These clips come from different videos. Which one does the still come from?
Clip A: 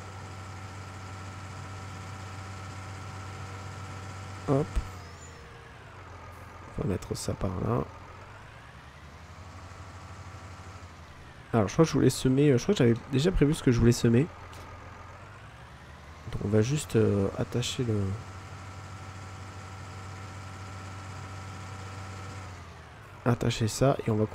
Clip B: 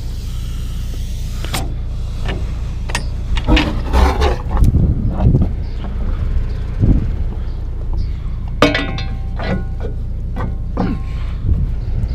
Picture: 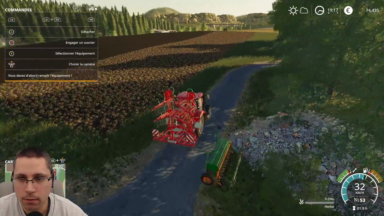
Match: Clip A